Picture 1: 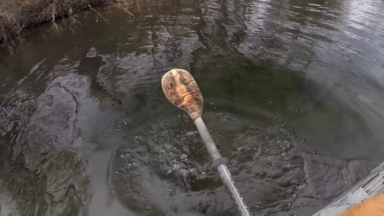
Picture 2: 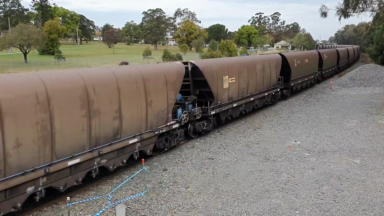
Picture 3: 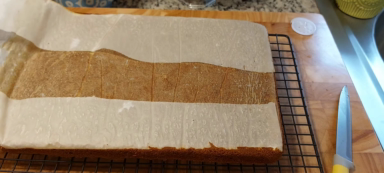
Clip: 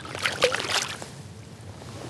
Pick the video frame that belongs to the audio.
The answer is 1